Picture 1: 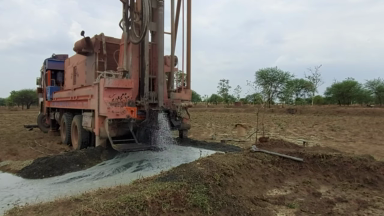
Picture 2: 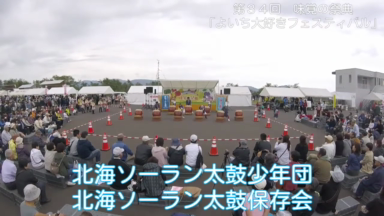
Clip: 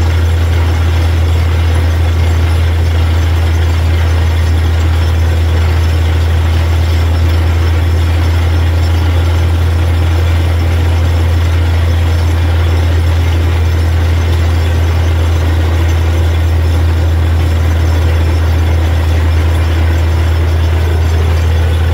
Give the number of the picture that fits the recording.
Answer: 1